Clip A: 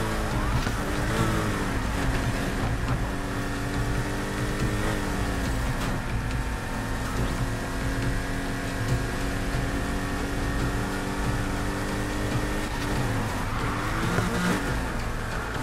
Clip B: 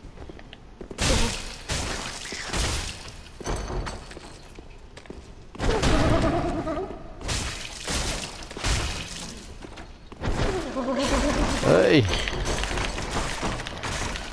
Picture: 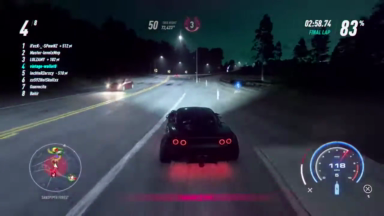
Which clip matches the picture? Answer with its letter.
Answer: A